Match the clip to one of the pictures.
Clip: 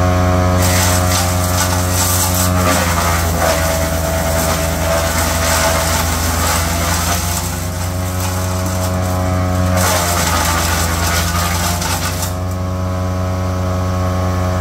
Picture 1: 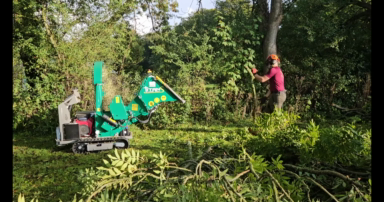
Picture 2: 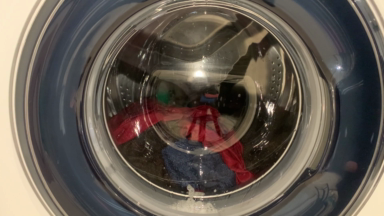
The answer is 1